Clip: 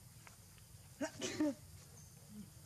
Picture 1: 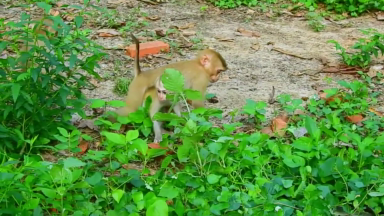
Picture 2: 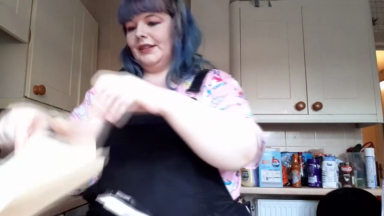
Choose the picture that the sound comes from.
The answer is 1